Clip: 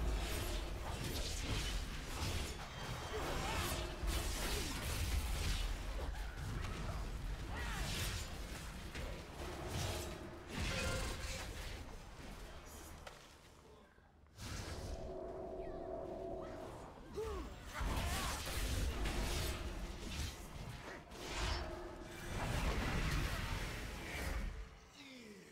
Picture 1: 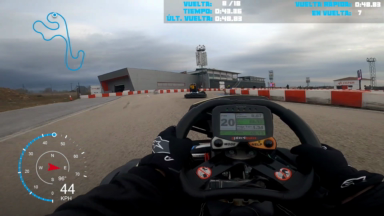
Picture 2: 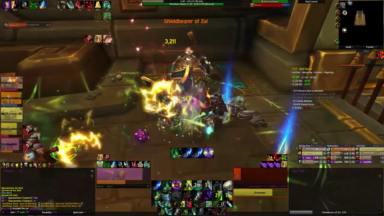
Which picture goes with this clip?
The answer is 2